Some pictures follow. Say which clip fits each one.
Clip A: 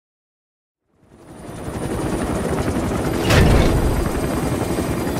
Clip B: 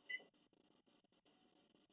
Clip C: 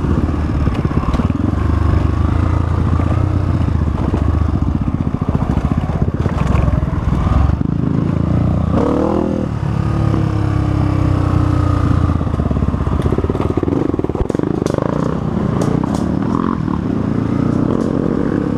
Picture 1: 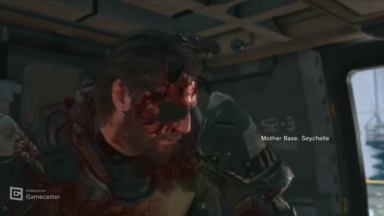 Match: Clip A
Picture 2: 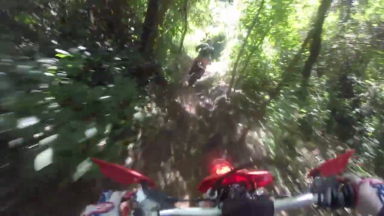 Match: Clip C